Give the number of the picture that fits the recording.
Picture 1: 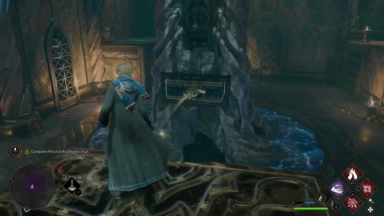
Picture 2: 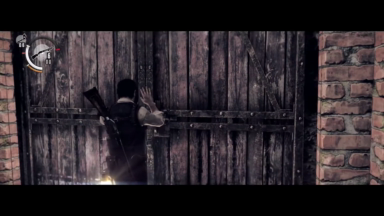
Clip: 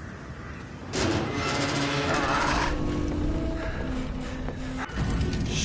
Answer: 2